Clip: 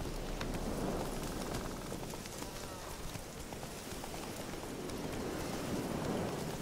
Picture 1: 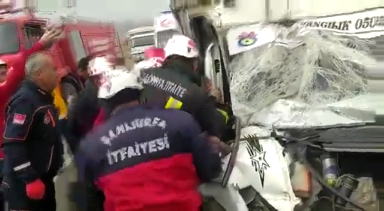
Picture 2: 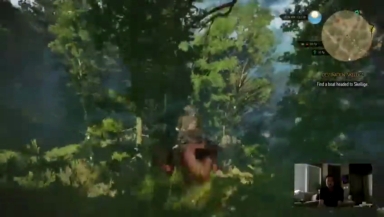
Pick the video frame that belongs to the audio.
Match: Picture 2